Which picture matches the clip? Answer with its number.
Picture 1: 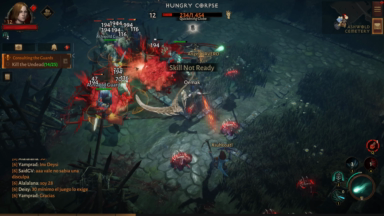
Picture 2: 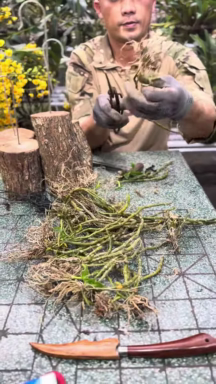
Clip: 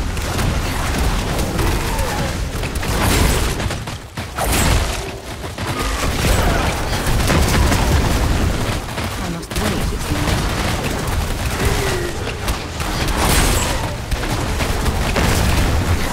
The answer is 1